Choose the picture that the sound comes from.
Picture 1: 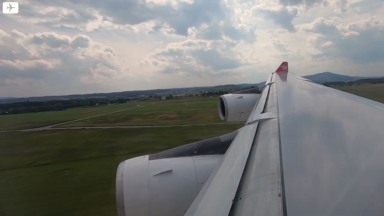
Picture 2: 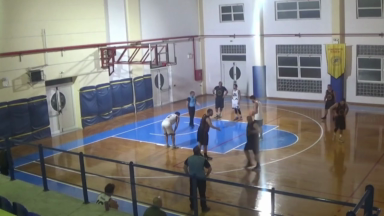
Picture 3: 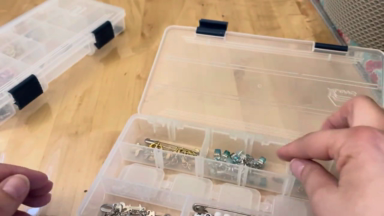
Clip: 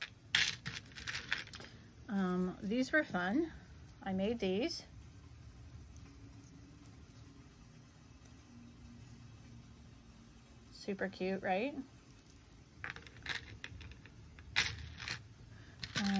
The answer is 3